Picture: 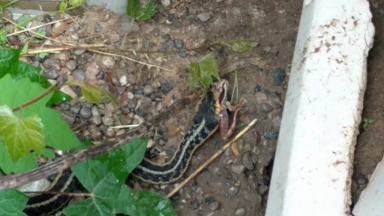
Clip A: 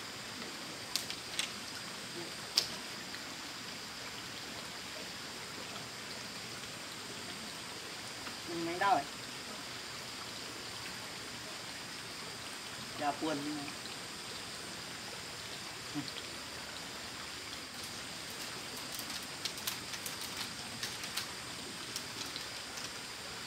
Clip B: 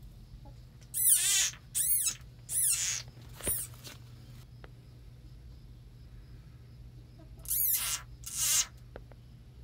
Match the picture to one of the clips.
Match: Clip B